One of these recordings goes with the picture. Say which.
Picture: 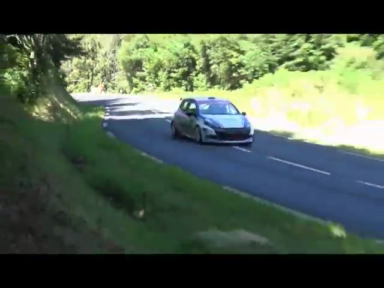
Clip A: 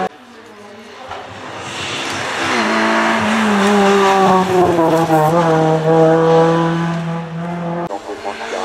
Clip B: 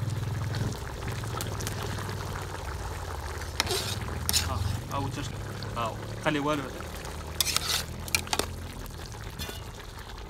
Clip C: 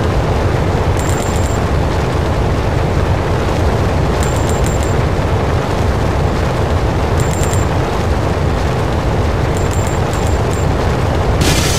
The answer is A